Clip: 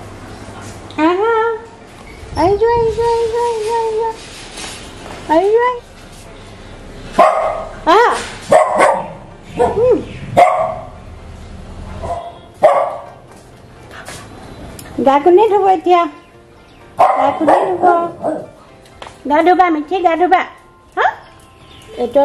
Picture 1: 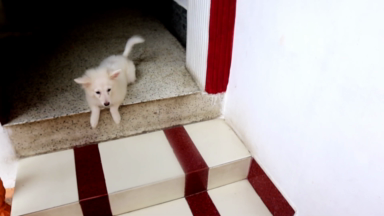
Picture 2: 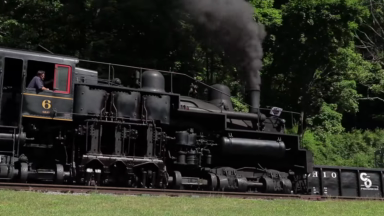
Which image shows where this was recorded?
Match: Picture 1